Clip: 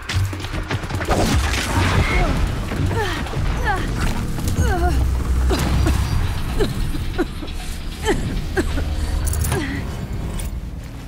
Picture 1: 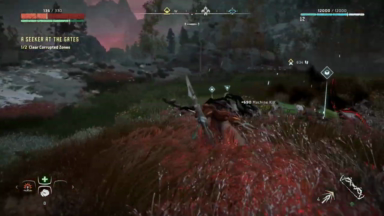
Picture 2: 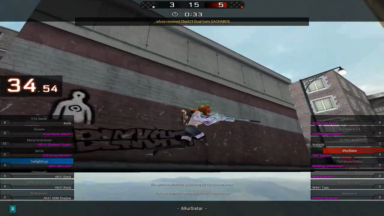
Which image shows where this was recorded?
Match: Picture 1